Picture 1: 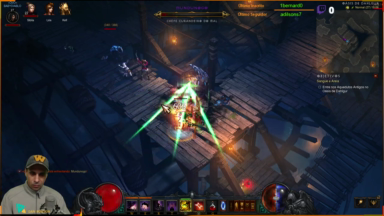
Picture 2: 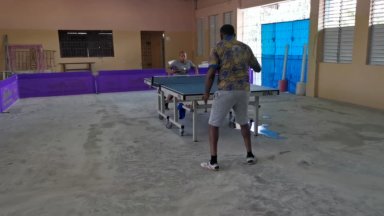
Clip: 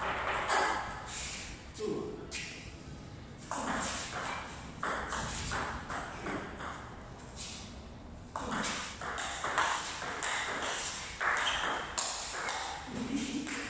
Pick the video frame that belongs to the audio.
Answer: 2